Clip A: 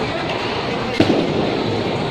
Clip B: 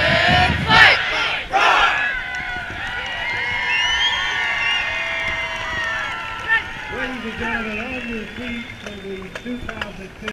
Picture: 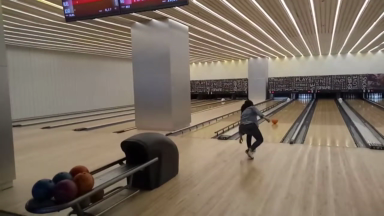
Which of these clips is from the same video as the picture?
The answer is A